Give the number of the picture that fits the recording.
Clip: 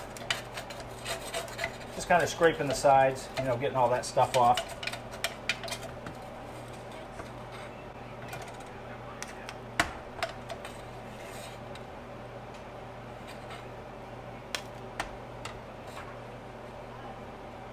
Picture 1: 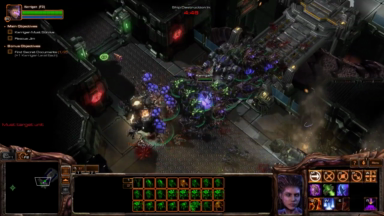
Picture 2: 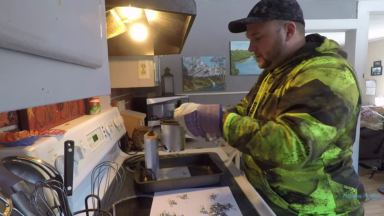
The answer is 2